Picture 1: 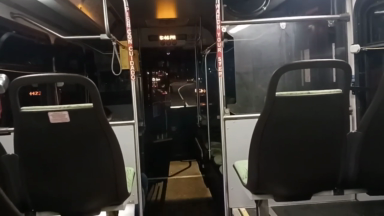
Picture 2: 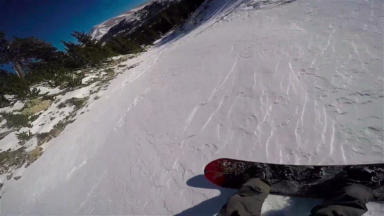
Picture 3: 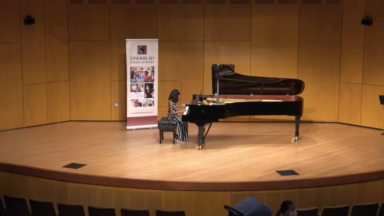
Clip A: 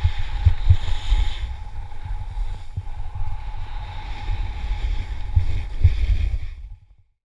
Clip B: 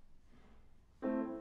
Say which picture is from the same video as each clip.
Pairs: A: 2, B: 3